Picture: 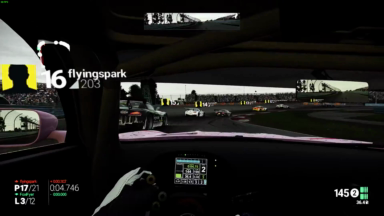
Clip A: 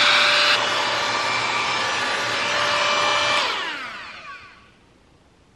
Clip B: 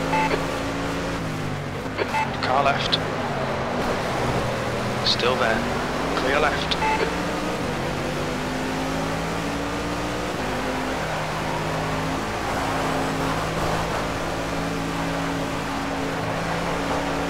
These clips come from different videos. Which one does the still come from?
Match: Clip B